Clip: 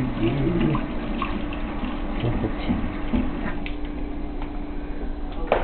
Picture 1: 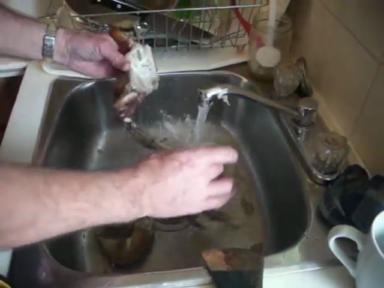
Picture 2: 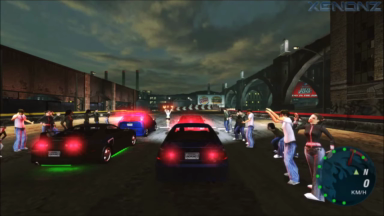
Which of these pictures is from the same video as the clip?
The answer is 1